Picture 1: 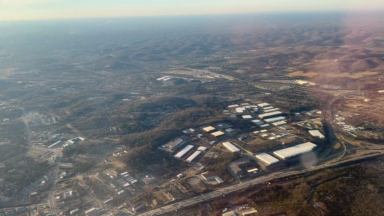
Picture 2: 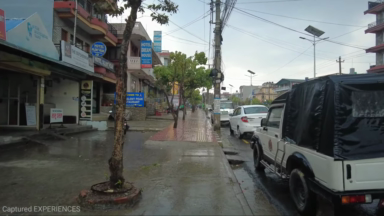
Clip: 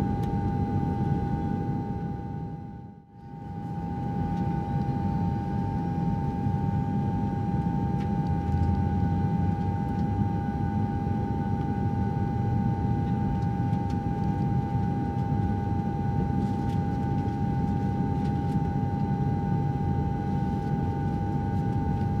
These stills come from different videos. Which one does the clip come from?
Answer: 1